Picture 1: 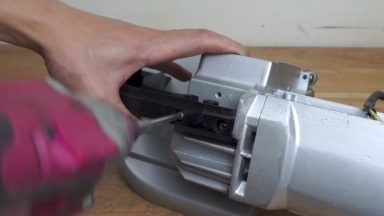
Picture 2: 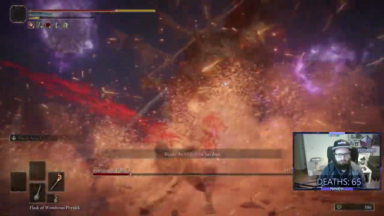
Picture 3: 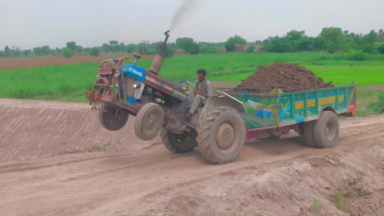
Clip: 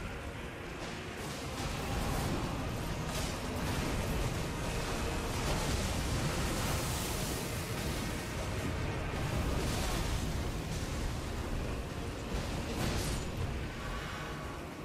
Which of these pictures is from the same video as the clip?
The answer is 2